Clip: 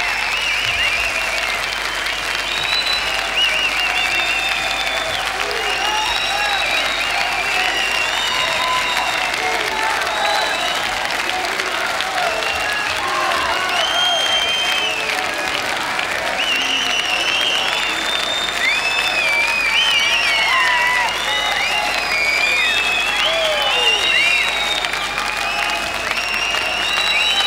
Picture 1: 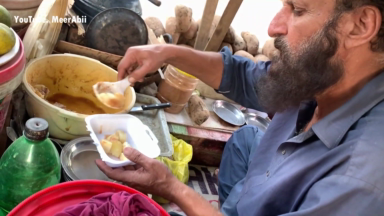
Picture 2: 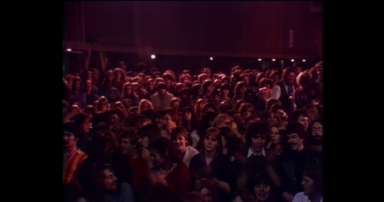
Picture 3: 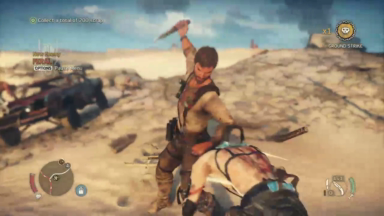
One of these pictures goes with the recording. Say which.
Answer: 2